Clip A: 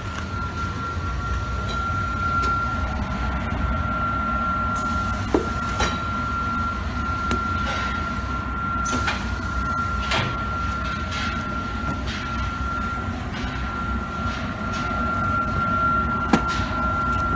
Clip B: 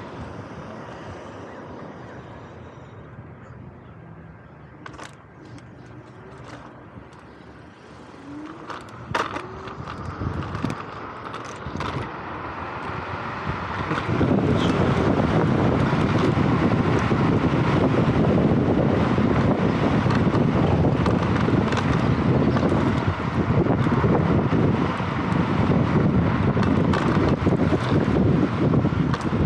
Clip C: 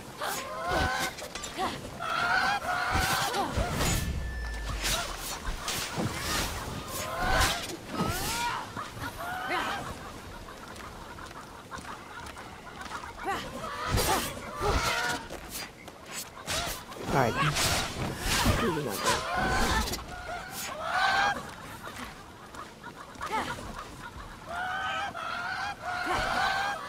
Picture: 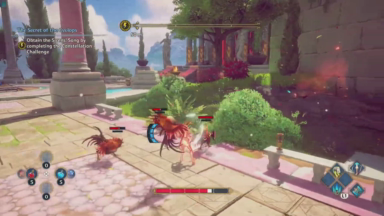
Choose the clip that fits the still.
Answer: C